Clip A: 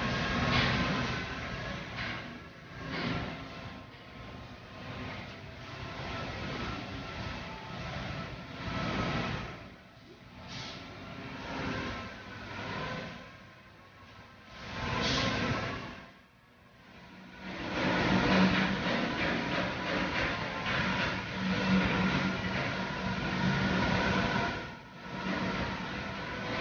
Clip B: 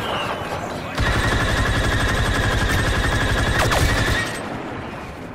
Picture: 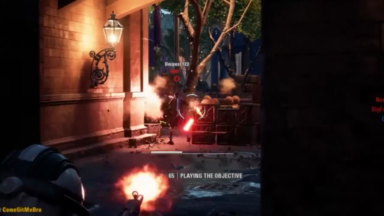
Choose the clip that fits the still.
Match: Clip B